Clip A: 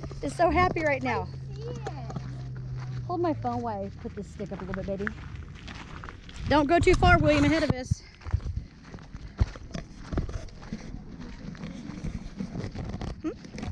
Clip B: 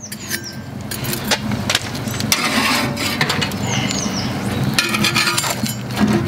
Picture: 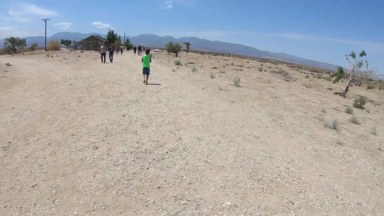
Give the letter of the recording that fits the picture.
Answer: A